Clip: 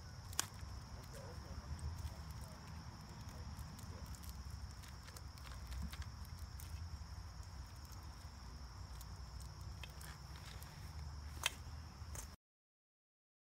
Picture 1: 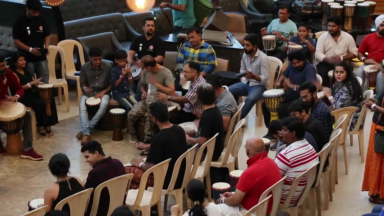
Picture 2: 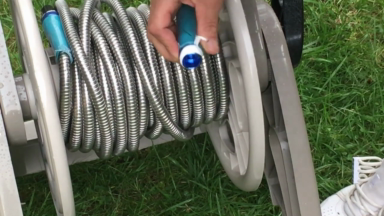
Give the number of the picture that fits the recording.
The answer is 2